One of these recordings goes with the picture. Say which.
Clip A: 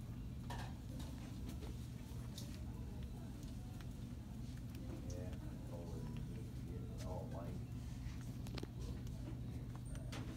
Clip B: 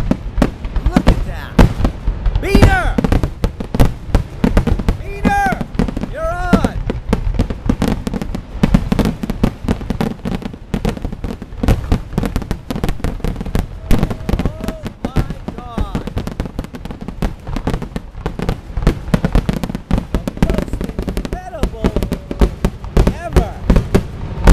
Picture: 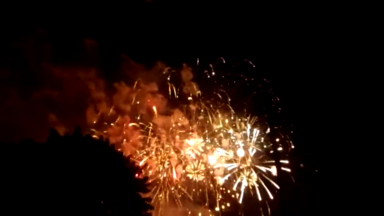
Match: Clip B